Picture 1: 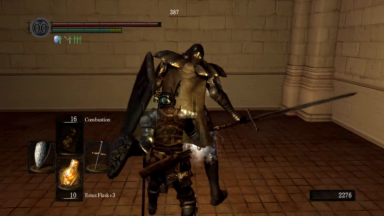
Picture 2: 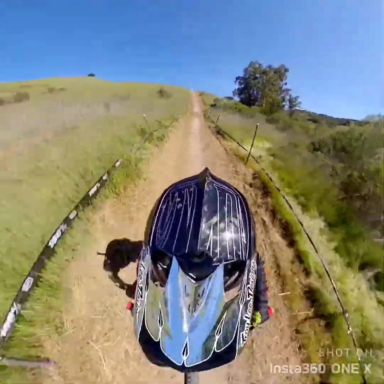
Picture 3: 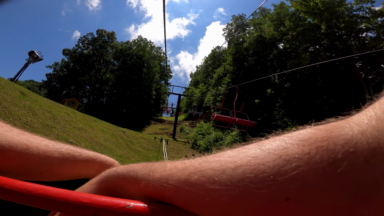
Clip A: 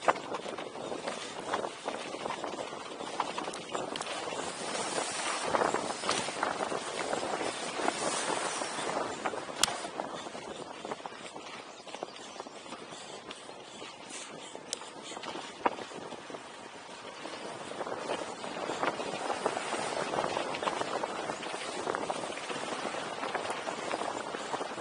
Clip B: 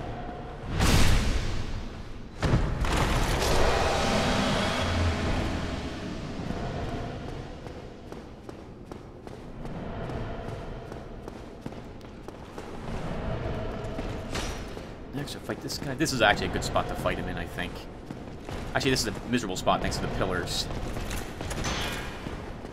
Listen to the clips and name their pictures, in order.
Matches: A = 2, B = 1